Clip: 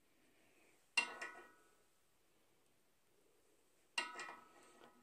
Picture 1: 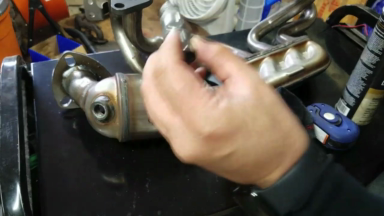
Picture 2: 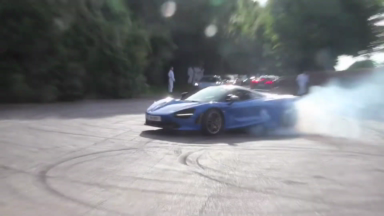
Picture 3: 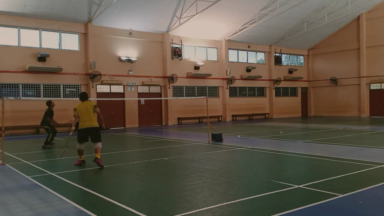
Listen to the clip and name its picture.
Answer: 1